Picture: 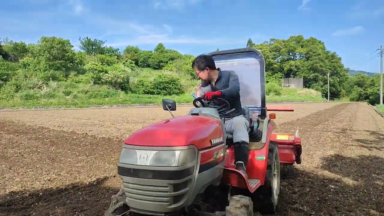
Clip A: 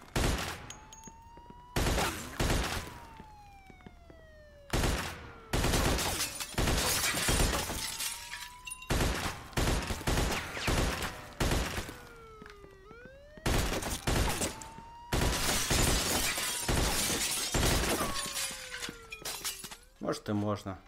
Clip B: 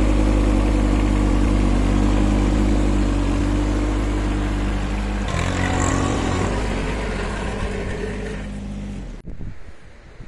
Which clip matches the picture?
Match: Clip B